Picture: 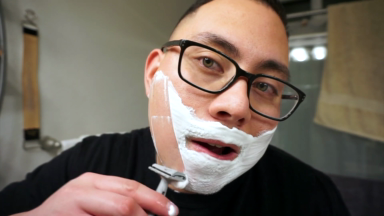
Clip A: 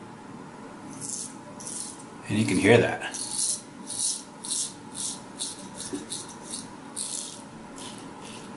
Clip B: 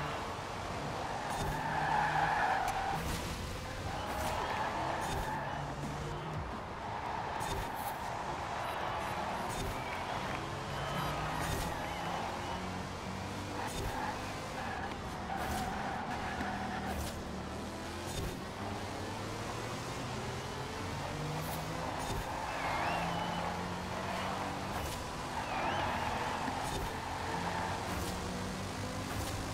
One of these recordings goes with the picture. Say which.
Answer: A